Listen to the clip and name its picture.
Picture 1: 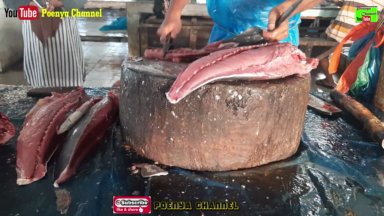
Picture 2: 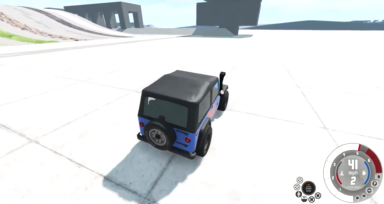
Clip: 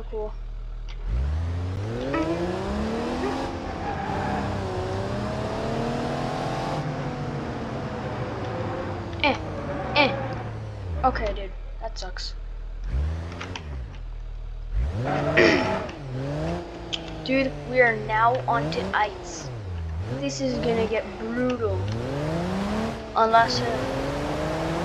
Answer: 2